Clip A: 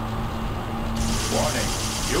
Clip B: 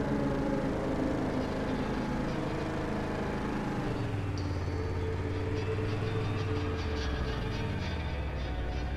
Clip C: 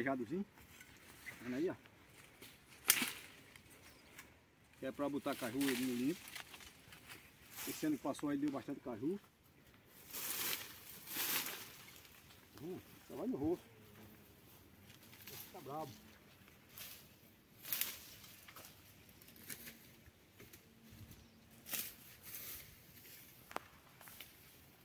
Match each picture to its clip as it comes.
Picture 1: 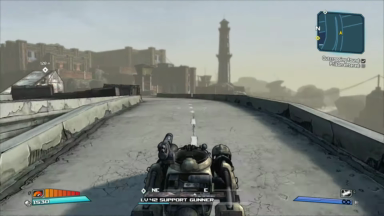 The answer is B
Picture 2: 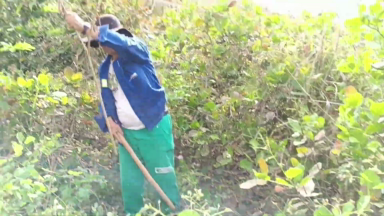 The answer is C